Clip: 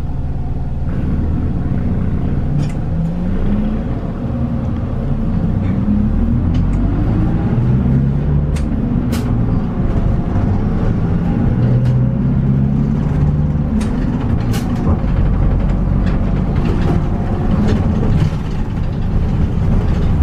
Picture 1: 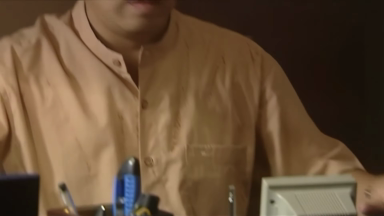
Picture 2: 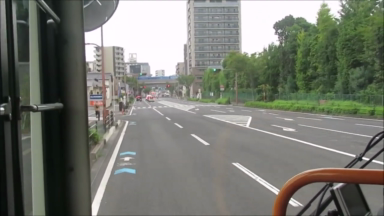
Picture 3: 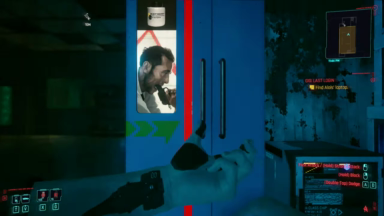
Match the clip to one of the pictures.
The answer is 2